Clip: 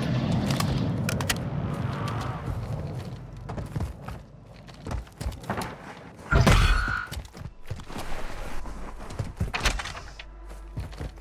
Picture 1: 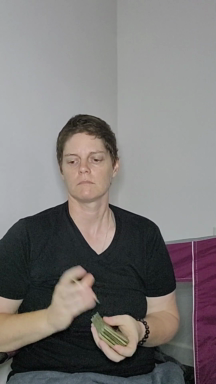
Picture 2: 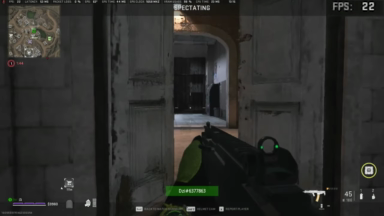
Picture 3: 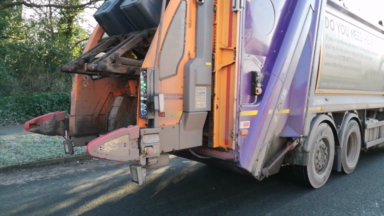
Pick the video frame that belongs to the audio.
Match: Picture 2